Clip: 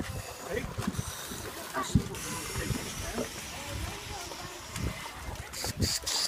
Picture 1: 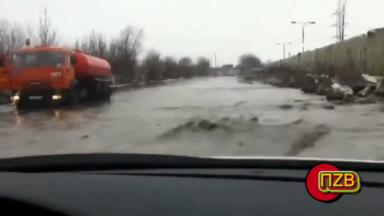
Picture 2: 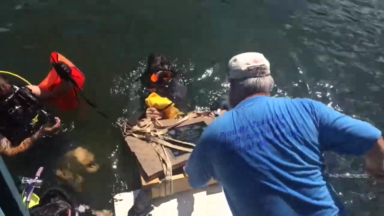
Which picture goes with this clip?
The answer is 2